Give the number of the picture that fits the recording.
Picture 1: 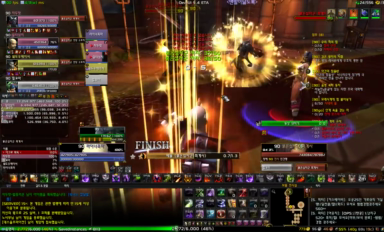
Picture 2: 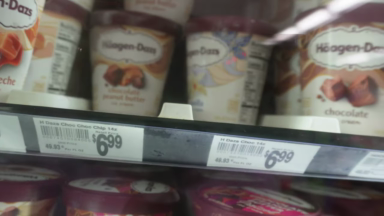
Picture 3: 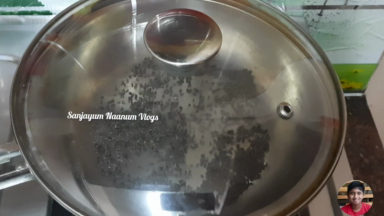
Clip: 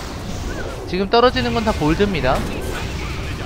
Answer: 1